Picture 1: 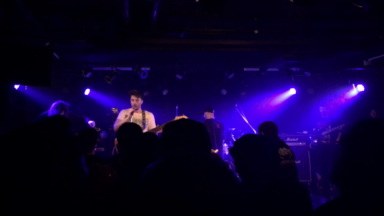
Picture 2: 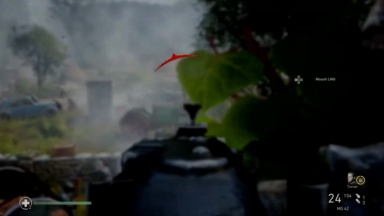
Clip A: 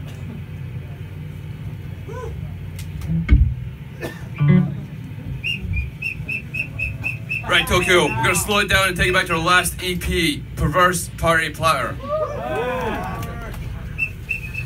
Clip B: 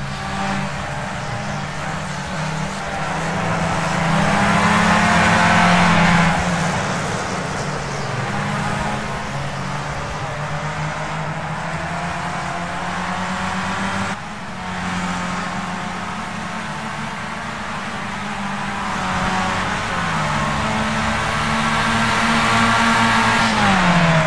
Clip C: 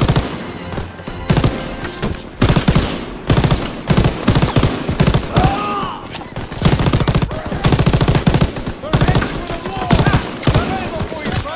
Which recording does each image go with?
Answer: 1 A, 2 C